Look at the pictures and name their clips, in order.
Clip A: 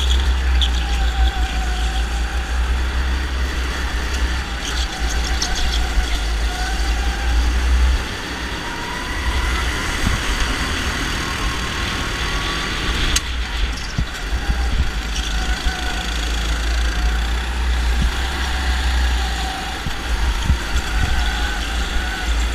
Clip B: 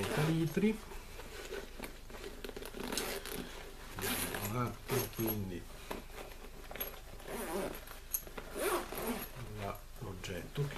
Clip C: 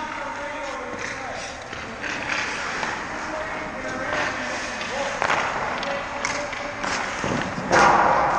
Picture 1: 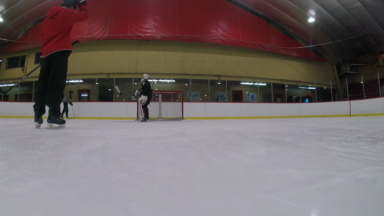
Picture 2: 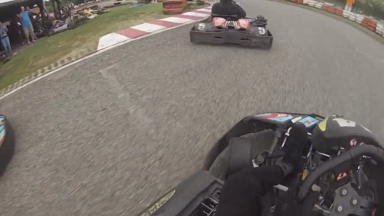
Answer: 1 C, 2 A